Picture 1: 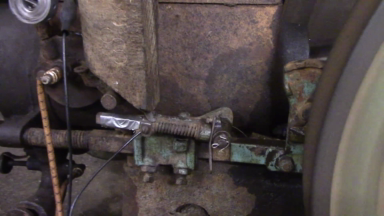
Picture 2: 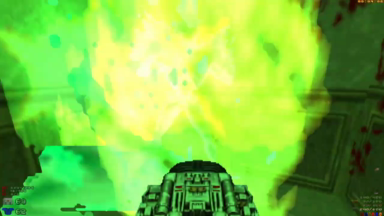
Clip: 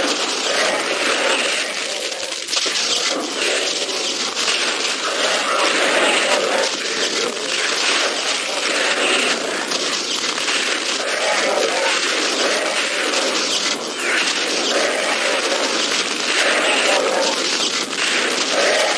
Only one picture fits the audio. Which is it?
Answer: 2